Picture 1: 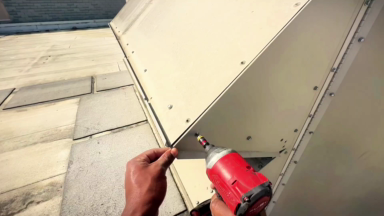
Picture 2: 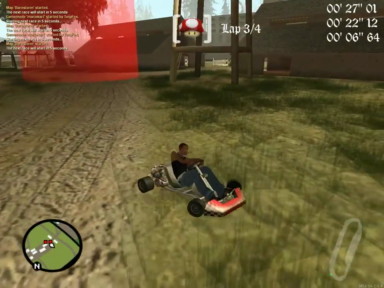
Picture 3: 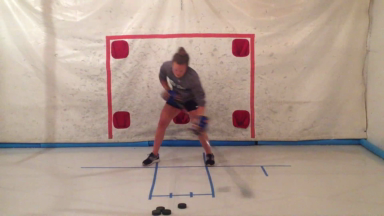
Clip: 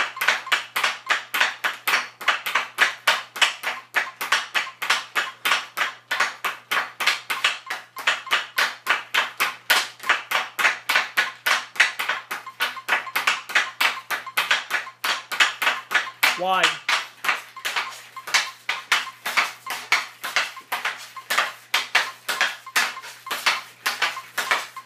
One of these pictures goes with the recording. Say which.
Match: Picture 3